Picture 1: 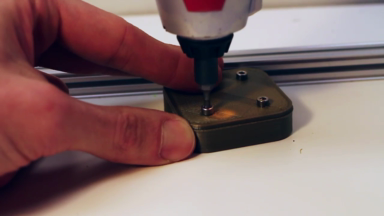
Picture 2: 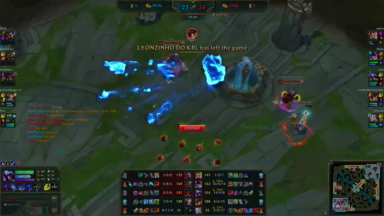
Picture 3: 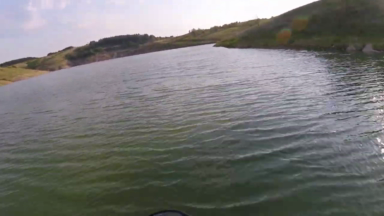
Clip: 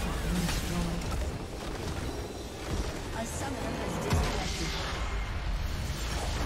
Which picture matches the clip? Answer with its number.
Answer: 2